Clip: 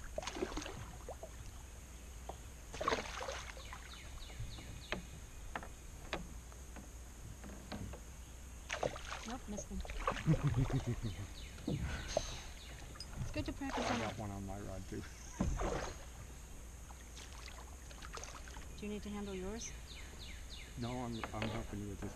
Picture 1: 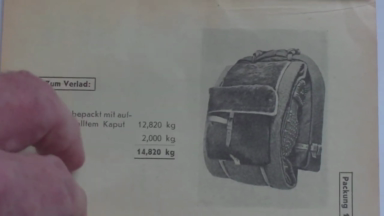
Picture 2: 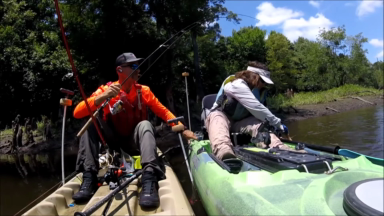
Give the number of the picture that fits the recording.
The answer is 2